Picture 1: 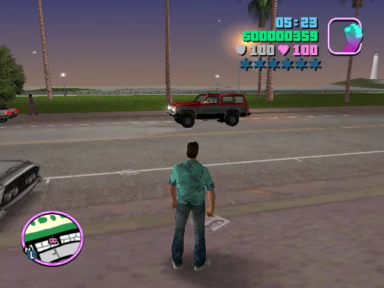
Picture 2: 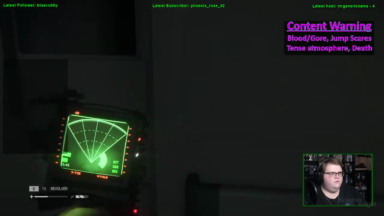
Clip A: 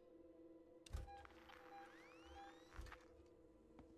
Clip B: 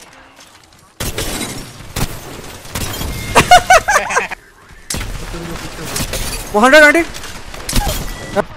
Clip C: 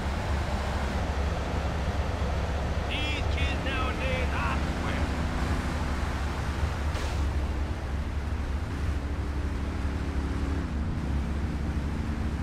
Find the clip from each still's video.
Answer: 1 C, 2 A